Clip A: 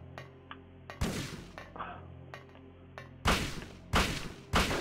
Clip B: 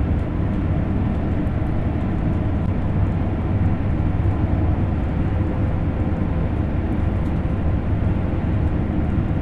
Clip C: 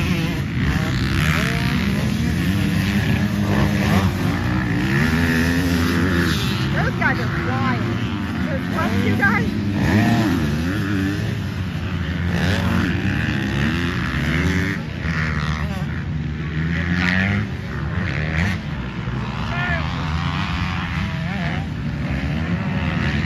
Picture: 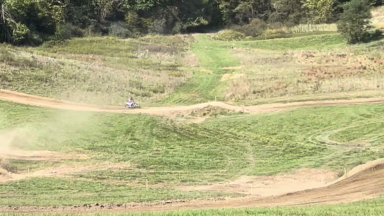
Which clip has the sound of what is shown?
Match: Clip C